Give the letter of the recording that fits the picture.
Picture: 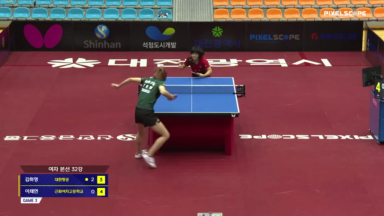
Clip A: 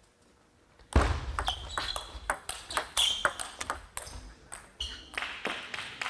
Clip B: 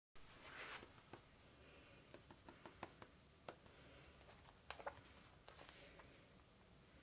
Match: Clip A